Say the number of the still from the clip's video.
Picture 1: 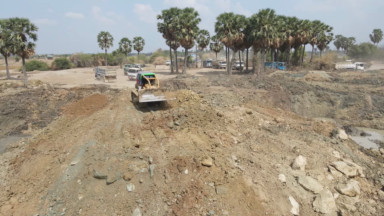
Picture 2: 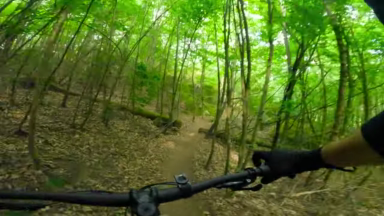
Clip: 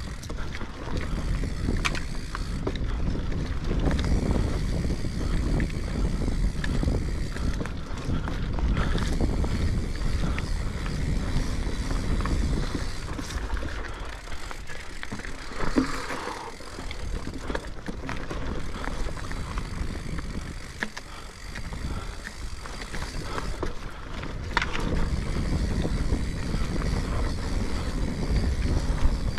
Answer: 2